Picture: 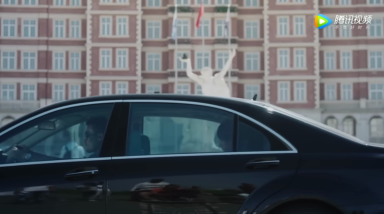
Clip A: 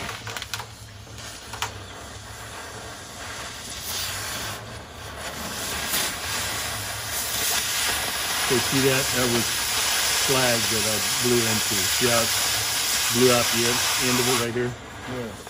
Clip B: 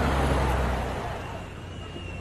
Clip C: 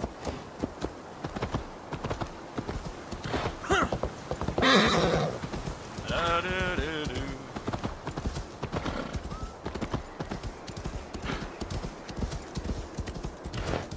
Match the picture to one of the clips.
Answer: B